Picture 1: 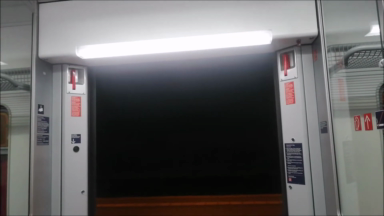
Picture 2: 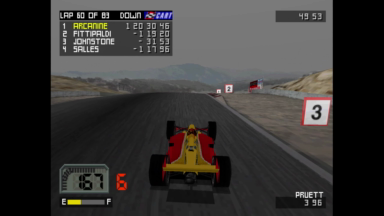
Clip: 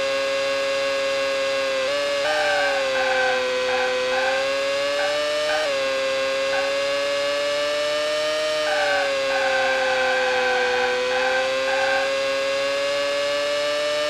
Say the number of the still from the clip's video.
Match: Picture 2